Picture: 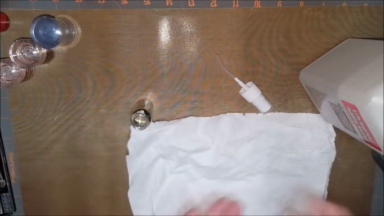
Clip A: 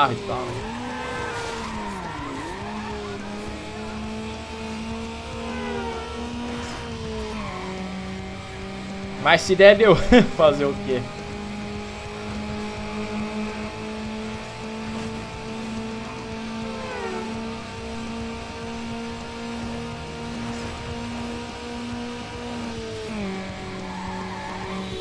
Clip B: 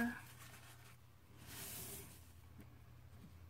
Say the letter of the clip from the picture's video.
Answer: B